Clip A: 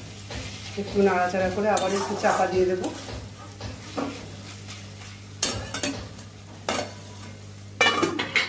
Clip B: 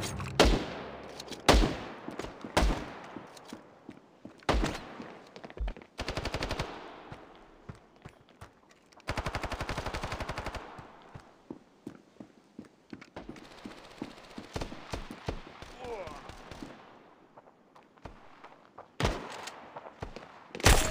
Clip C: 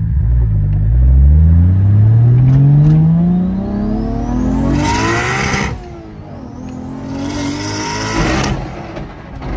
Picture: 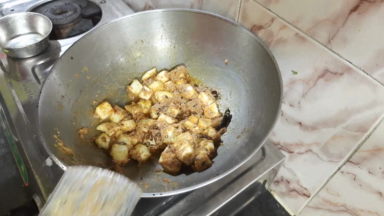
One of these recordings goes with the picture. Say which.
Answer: A